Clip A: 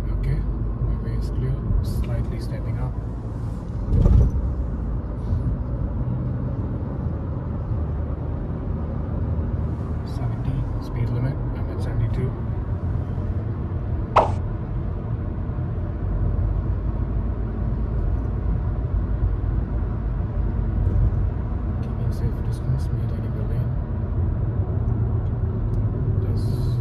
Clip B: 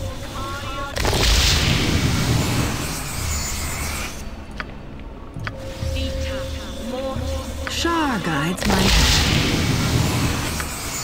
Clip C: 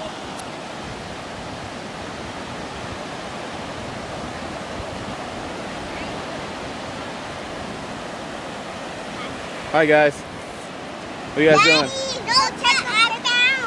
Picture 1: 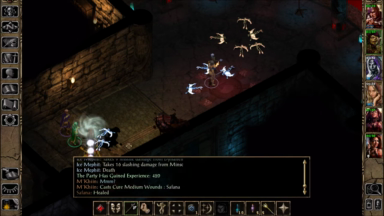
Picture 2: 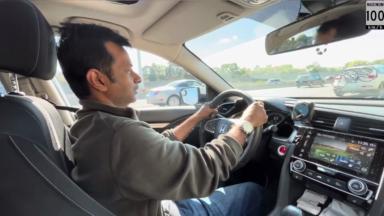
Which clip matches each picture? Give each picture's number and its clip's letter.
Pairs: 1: B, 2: A